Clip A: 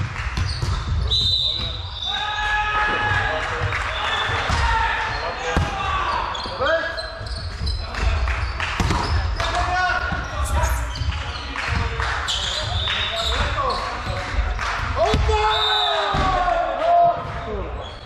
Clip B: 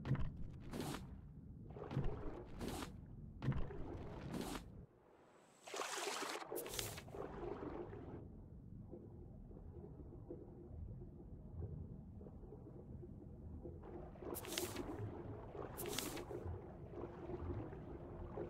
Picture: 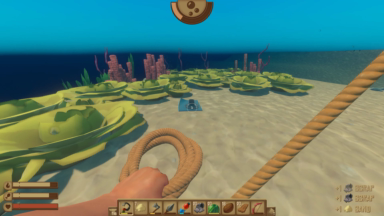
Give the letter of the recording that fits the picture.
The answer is B